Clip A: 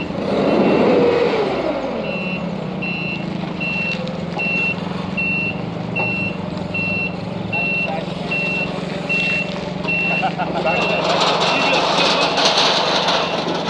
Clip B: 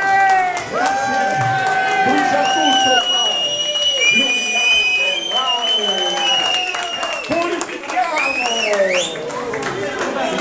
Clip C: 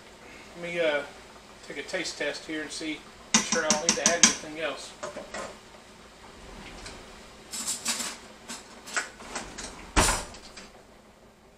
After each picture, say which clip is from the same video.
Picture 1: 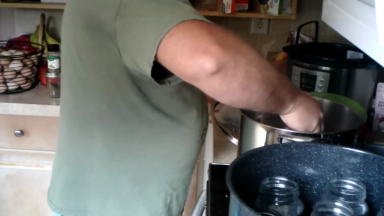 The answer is C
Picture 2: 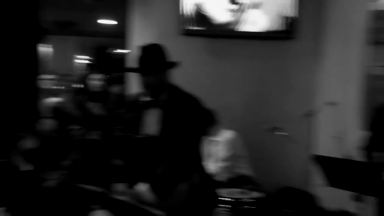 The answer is B